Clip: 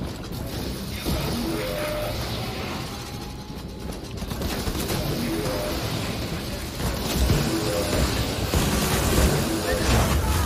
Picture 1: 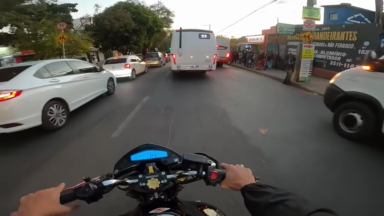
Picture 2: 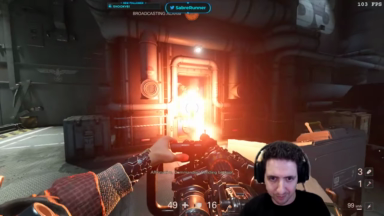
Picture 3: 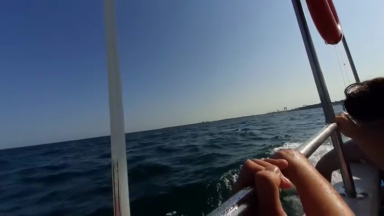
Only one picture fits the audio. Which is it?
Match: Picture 2